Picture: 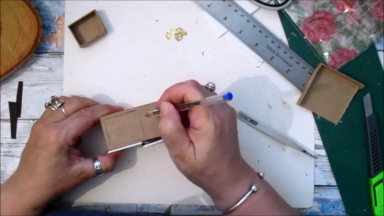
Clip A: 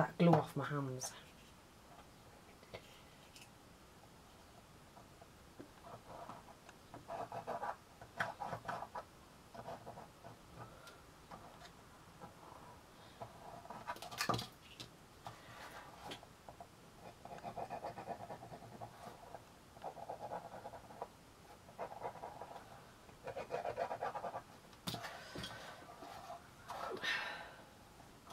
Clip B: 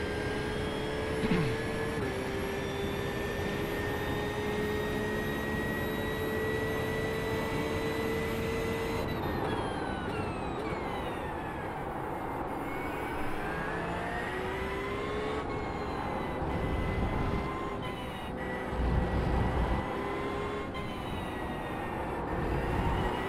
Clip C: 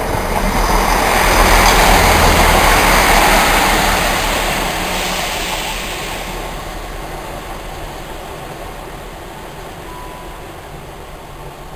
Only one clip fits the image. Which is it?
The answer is A